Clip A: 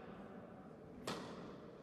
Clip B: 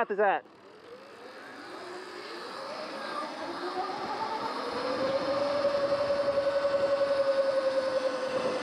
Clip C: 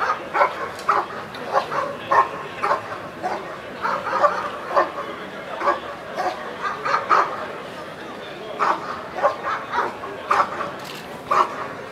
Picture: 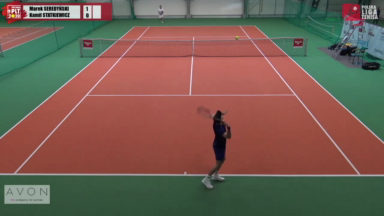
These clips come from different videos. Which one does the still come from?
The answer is A